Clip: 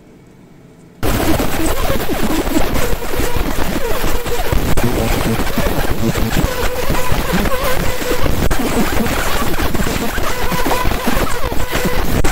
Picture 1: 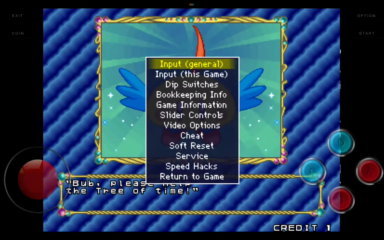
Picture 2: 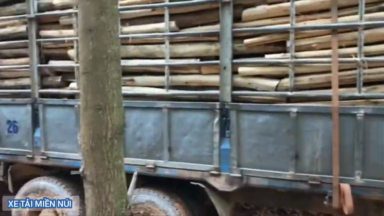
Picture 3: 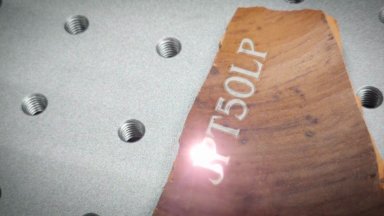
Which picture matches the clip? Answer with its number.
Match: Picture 3